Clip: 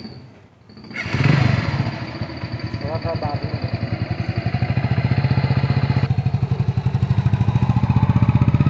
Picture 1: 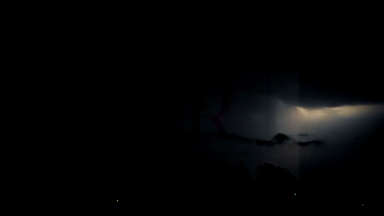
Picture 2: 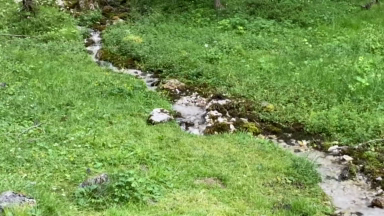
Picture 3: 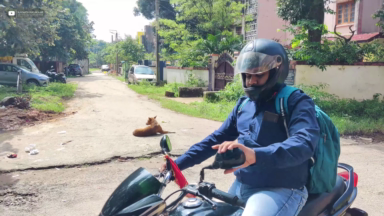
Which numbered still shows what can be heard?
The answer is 3